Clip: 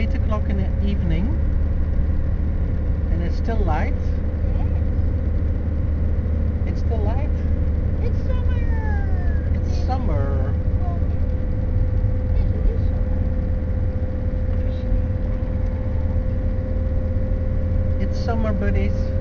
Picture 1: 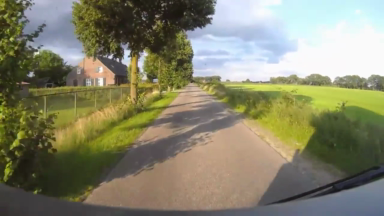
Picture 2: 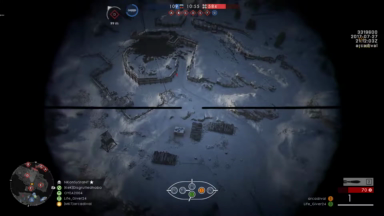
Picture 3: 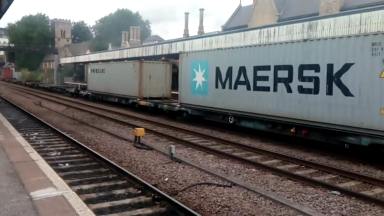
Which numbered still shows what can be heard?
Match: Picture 1